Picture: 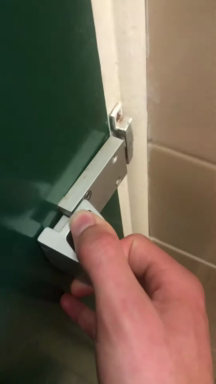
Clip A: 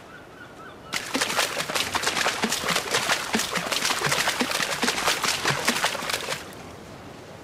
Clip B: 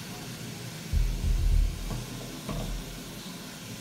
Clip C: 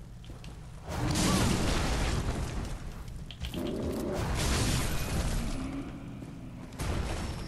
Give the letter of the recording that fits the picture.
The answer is B